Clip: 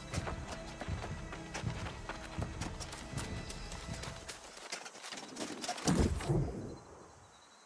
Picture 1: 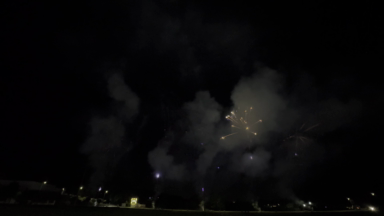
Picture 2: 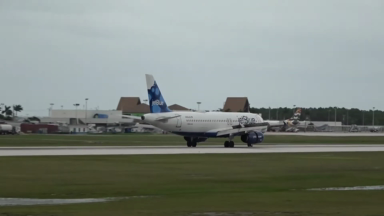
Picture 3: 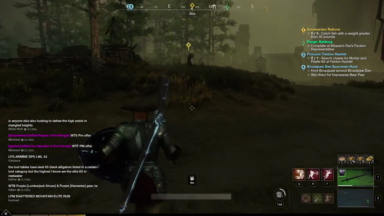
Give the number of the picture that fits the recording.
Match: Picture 3